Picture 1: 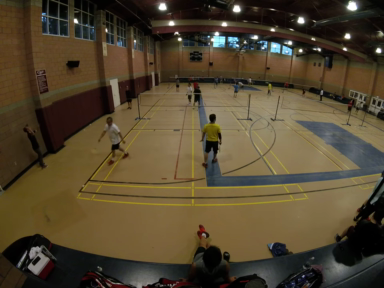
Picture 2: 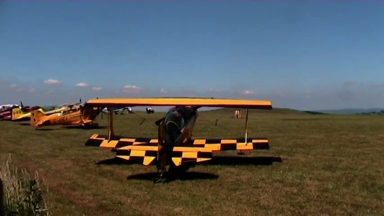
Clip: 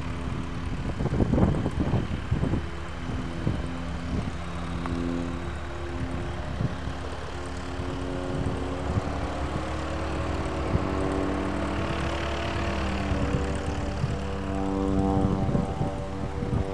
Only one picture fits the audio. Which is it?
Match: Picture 2